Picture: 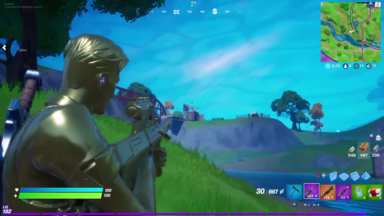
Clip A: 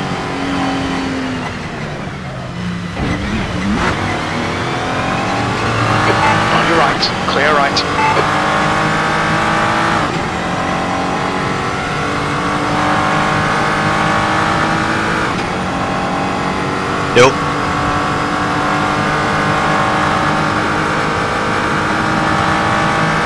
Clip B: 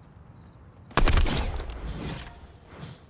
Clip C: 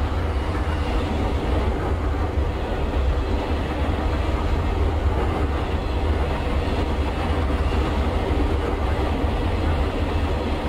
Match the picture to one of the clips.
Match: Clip B